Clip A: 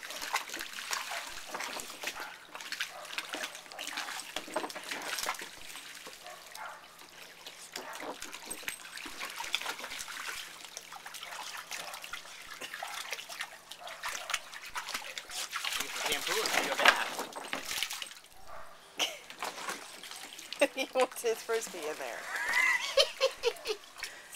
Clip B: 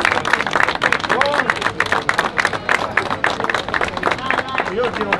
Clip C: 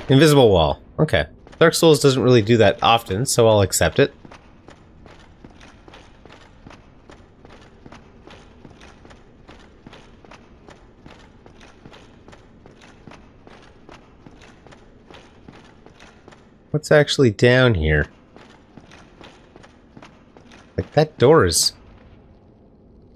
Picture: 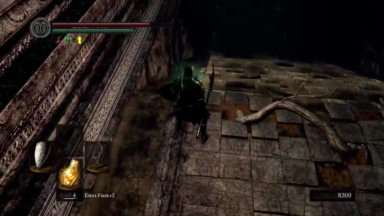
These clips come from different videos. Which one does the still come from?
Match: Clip C